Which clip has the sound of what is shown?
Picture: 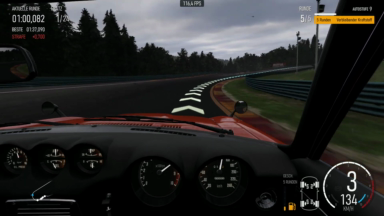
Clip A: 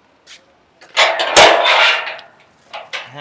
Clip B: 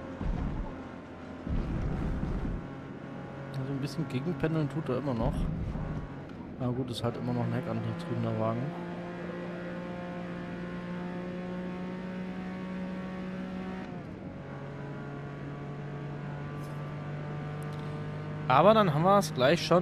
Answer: B